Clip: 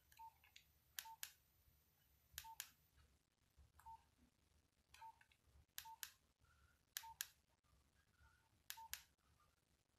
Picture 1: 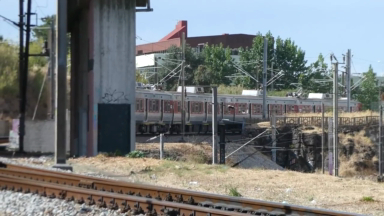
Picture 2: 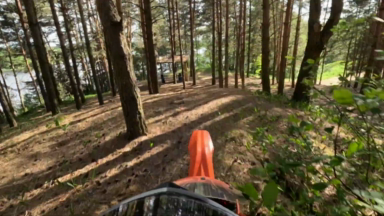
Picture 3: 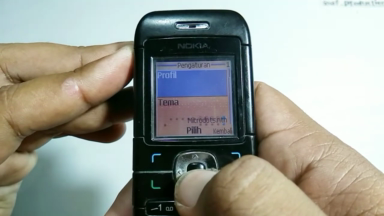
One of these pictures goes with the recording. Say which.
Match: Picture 3